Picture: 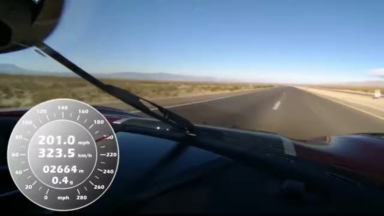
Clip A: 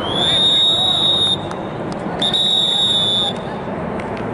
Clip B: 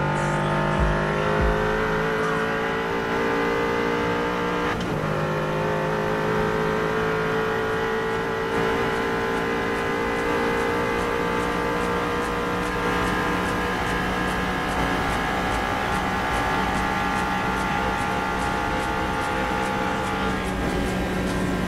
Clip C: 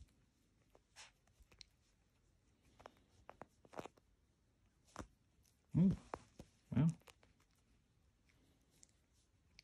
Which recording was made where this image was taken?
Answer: B